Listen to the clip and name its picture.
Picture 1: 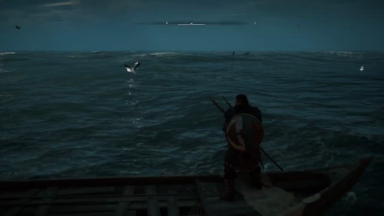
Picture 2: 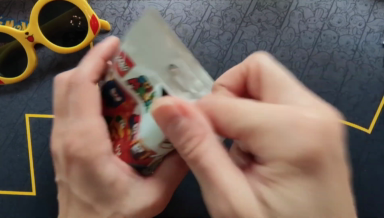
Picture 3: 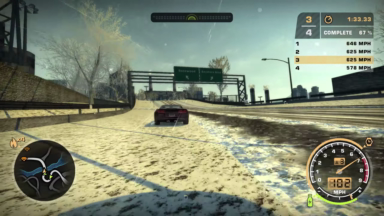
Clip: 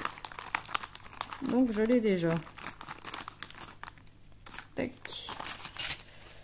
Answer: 2